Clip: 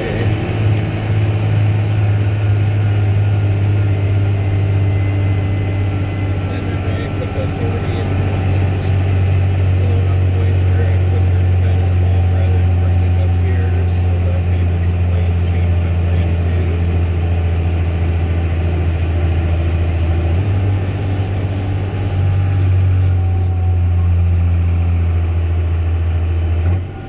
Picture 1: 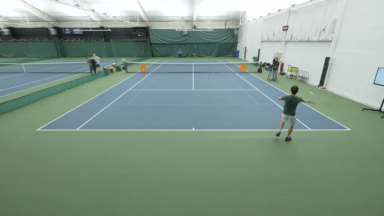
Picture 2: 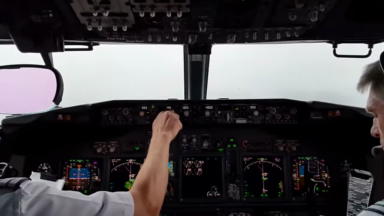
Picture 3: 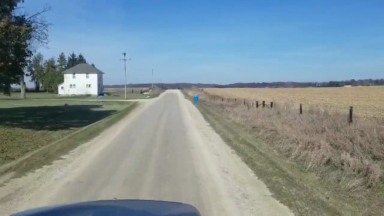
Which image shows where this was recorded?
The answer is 3